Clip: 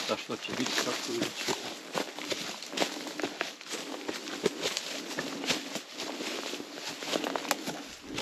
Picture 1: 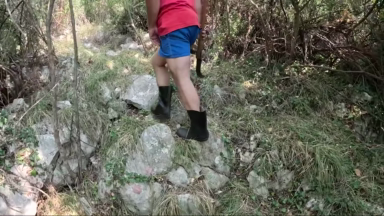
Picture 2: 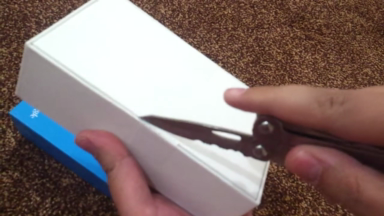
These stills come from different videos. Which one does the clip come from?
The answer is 1